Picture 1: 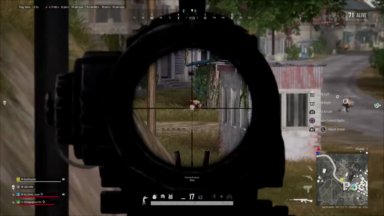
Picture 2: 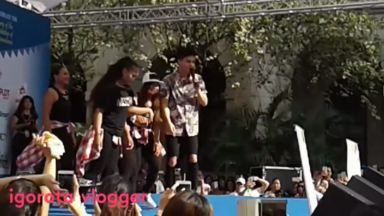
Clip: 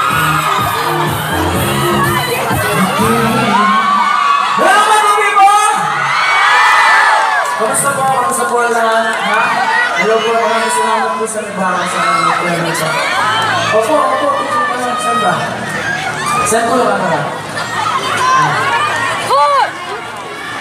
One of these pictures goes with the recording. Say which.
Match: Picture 2